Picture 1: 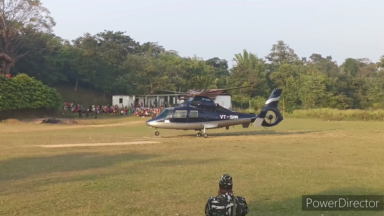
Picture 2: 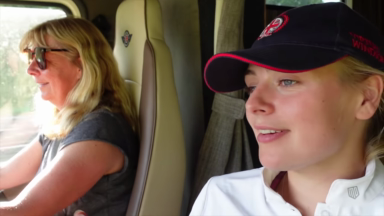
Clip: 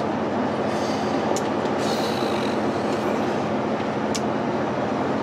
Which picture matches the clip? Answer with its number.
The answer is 2